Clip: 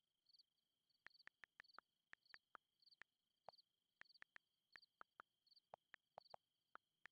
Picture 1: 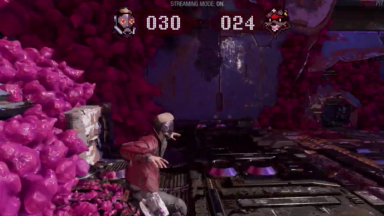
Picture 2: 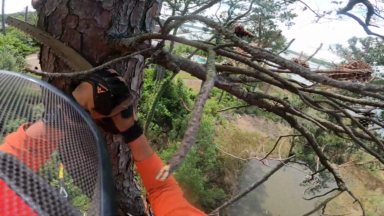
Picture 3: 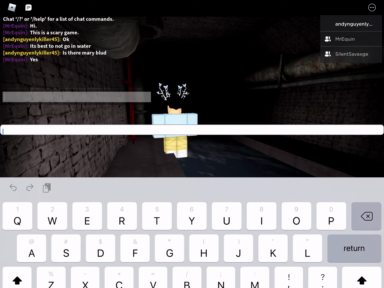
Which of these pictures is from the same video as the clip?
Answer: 3